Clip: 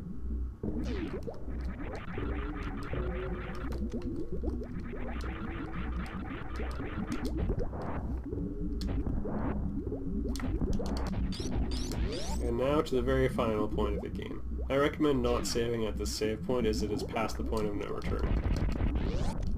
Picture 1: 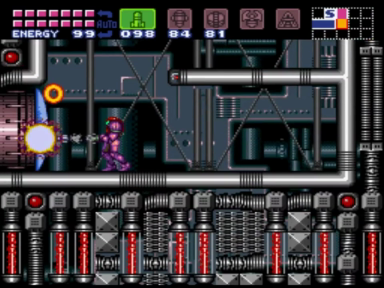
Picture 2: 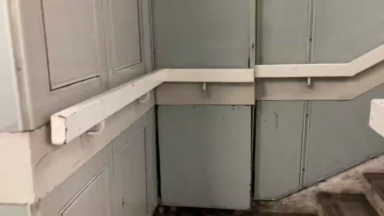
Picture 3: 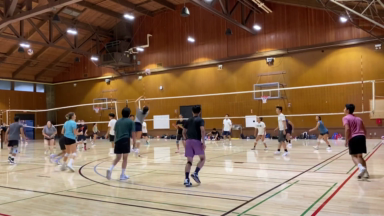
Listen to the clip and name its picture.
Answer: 1